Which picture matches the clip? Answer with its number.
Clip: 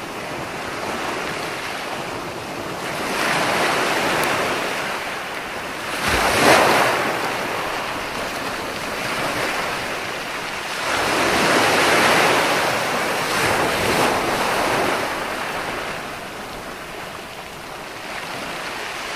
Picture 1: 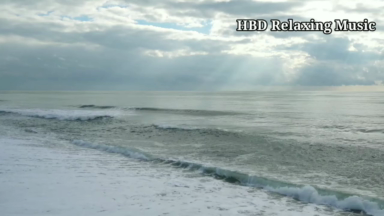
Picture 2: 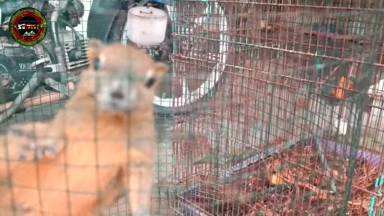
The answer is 1